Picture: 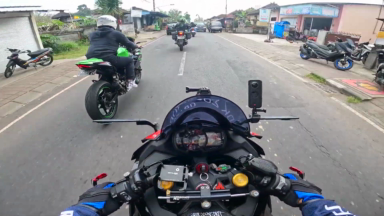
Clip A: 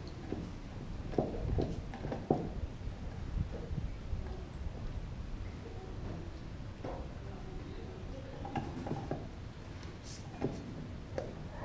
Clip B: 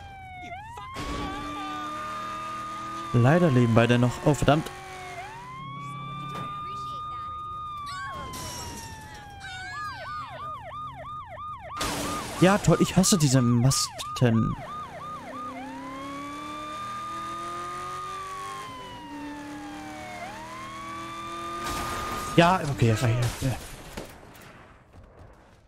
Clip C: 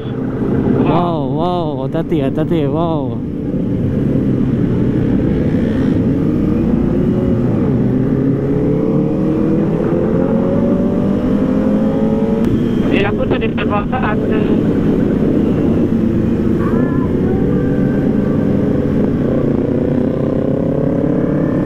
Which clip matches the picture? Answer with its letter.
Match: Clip C